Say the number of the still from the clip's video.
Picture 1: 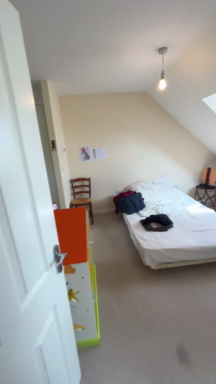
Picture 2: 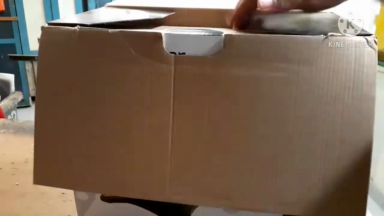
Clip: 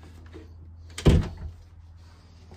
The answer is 1